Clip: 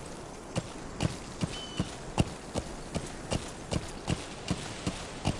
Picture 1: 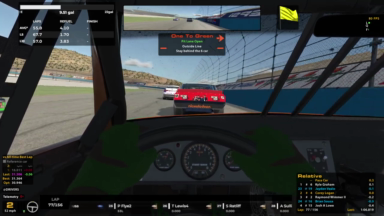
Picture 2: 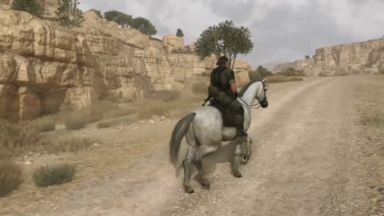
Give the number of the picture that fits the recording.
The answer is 2